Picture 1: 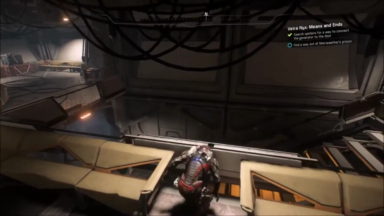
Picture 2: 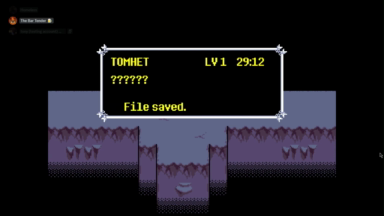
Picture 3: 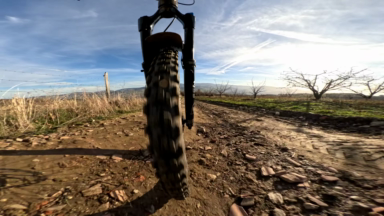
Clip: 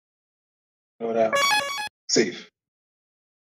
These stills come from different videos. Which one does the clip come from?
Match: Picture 2